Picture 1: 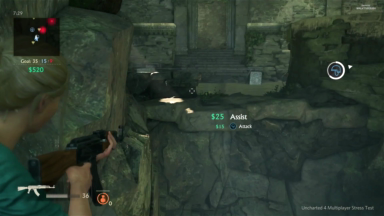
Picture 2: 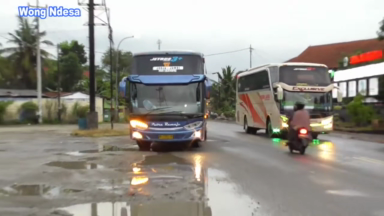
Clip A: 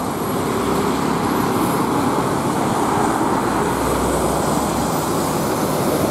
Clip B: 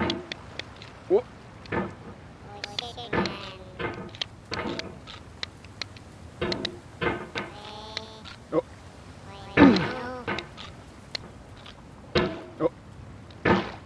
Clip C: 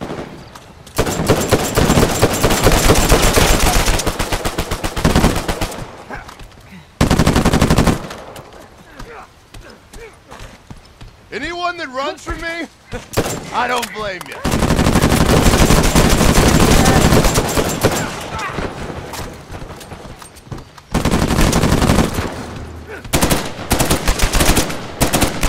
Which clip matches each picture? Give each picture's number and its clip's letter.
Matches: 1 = C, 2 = A